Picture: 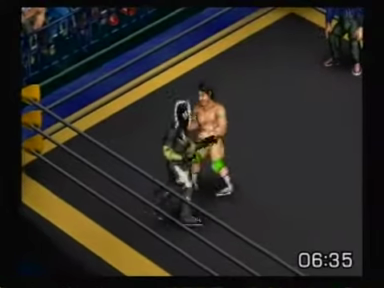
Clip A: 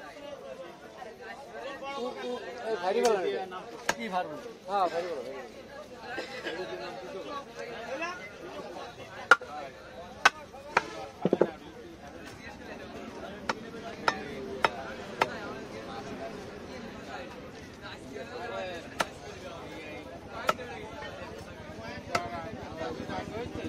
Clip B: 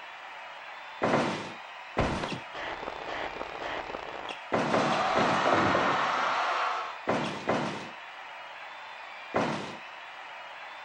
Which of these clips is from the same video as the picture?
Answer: B